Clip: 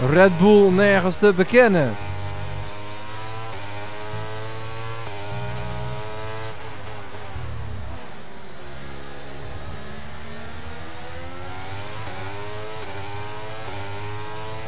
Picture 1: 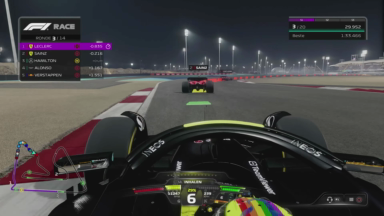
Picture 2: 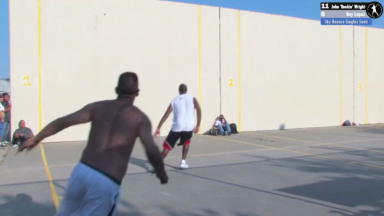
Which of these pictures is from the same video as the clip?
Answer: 1